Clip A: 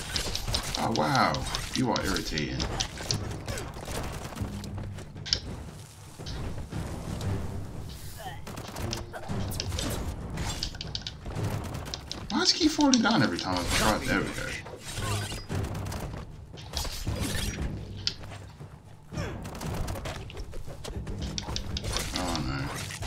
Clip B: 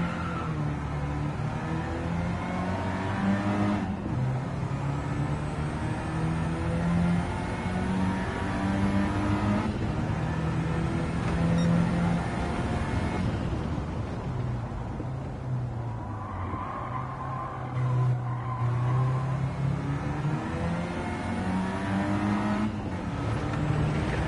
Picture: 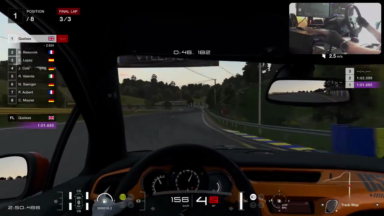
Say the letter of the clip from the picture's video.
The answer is B